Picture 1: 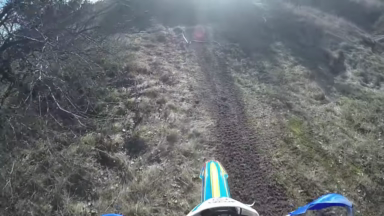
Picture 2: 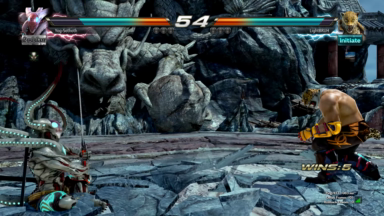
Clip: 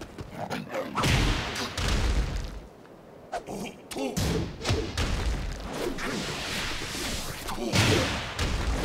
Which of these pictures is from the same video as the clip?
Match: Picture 2